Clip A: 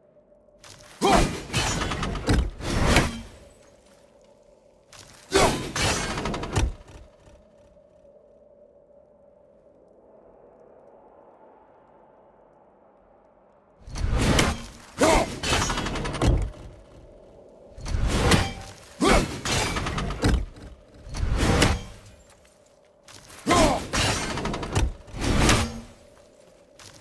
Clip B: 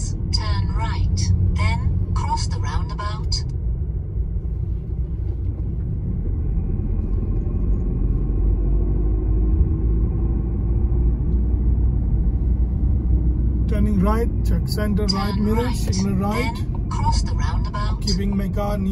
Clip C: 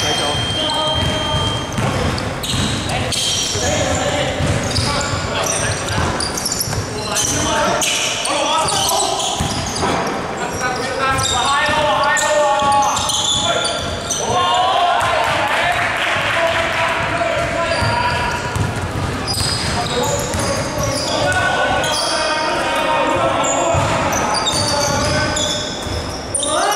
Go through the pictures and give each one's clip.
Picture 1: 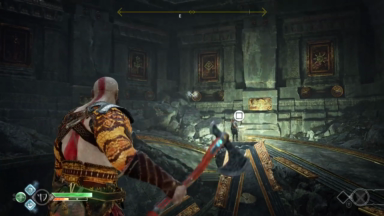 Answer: A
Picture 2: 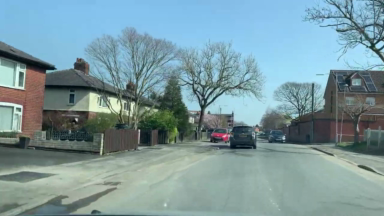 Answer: B